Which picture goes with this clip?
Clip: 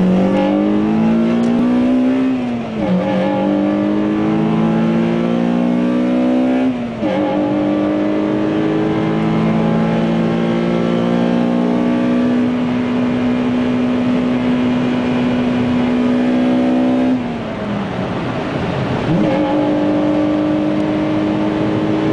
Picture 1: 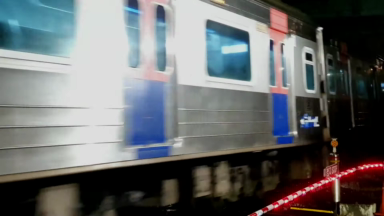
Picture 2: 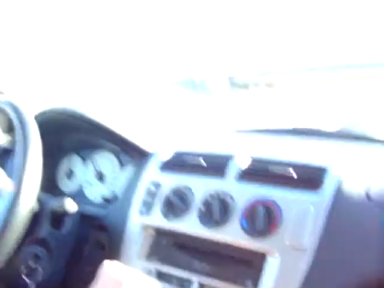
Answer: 2